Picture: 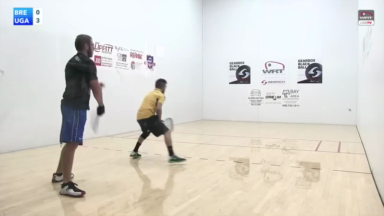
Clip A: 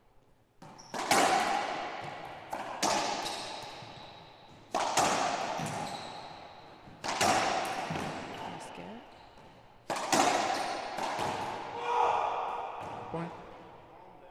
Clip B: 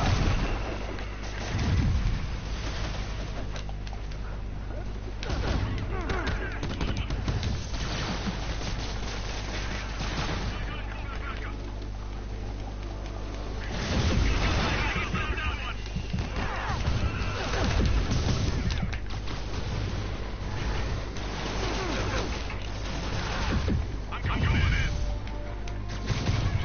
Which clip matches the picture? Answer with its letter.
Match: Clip A